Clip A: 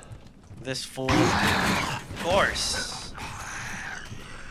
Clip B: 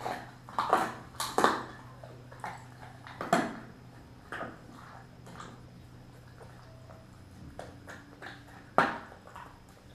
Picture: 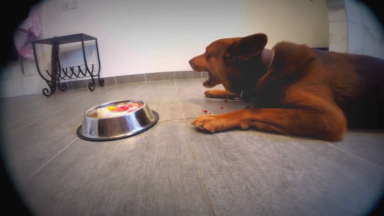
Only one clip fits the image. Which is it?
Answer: B